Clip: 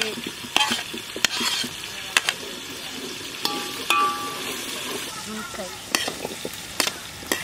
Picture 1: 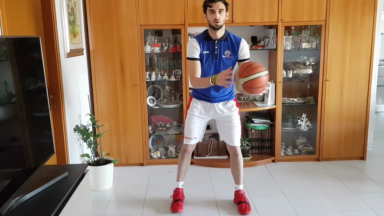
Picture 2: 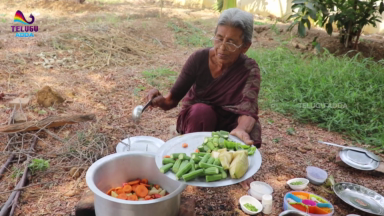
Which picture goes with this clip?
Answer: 2